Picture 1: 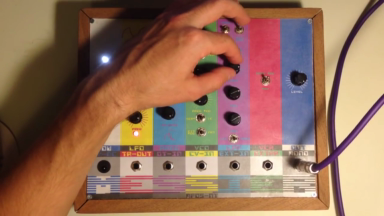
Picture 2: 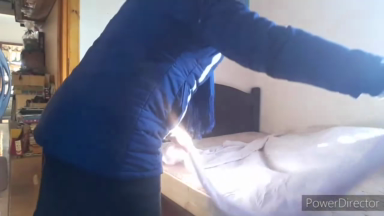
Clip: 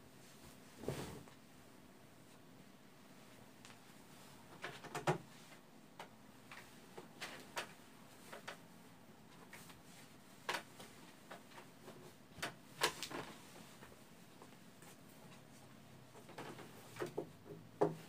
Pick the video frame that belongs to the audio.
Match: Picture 2